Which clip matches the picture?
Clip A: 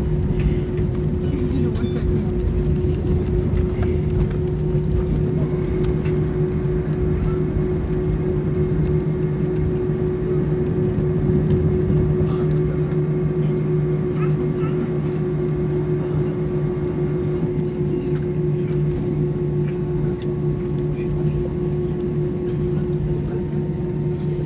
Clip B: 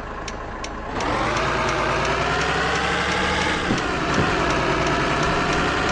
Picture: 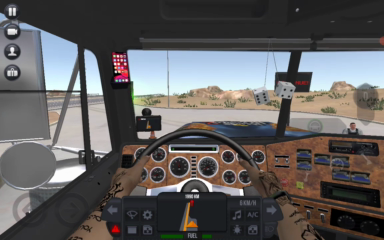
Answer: B